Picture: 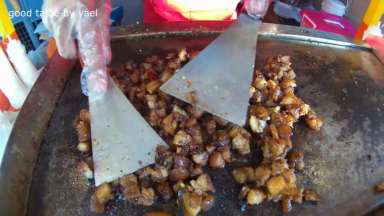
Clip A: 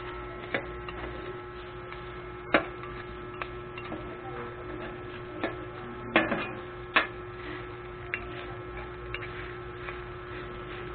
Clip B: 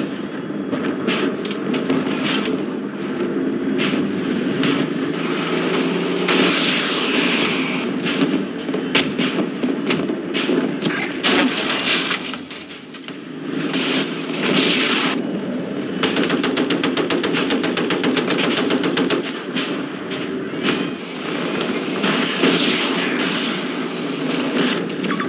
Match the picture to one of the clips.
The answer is A